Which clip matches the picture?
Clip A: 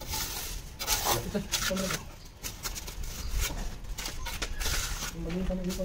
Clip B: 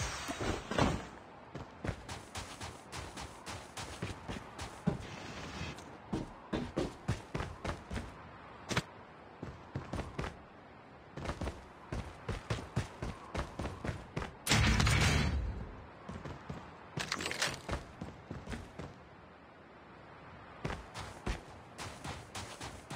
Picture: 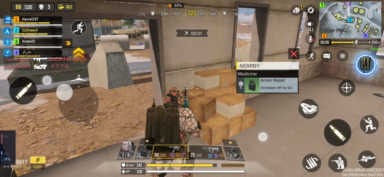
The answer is B